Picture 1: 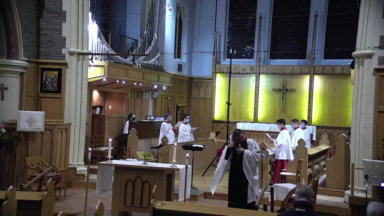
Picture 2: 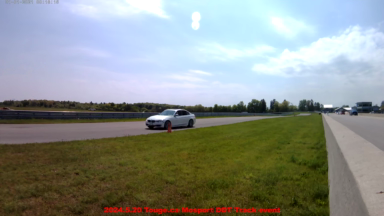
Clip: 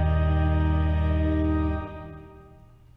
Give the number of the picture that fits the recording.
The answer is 1